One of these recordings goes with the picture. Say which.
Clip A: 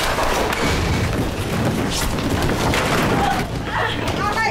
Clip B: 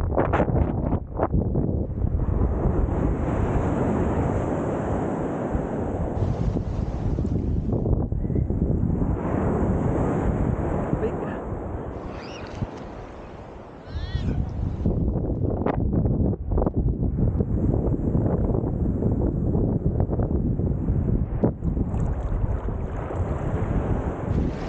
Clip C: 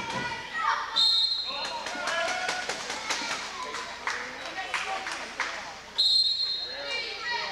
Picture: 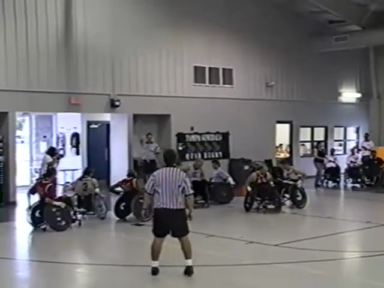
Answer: C